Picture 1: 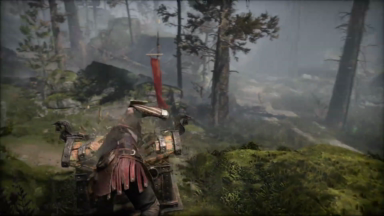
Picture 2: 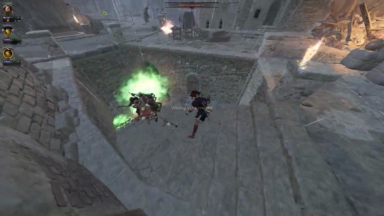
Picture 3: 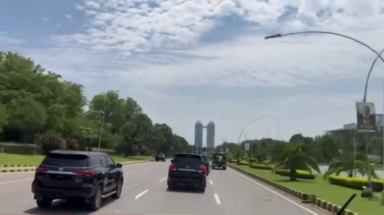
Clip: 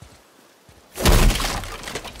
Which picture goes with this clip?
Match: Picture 1